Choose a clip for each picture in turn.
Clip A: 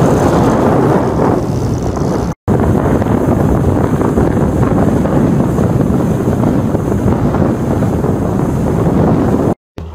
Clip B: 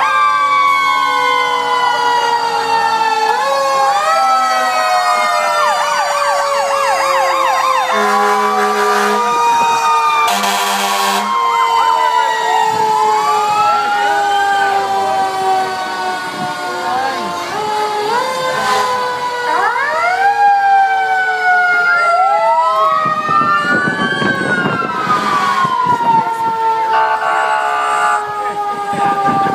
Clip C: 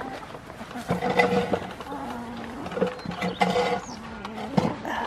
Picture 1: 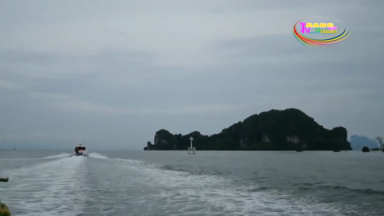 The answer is A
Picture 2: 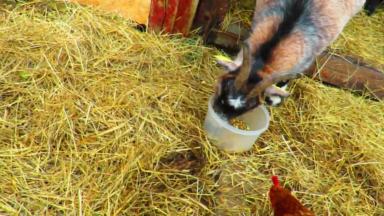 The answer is C